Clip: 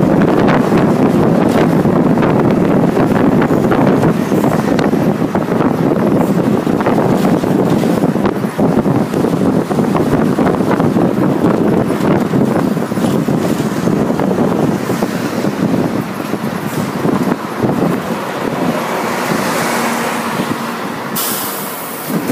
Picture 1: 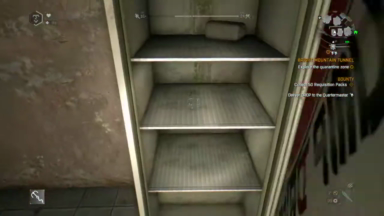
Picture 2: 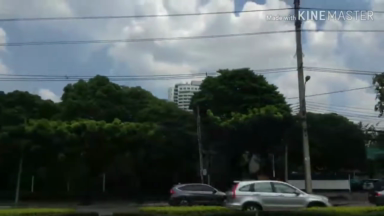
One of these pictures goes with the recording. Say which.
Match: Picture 2